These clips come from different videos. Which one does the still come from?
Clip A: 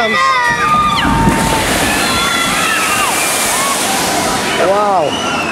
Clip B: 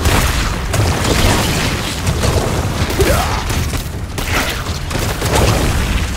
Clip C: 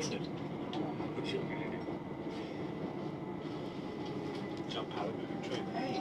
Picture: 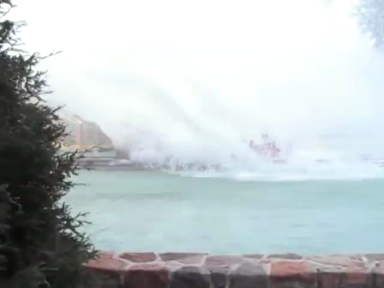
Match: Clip A